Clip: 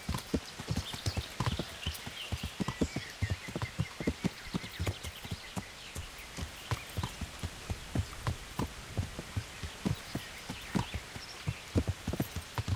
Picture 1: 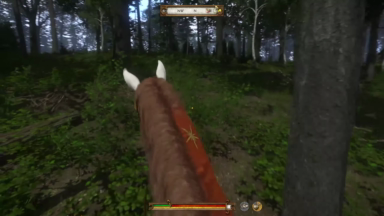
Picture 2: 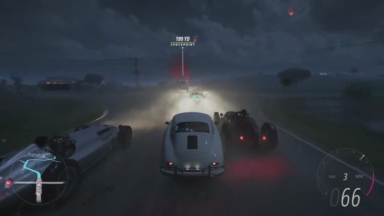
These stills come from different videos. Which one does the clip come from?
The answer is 1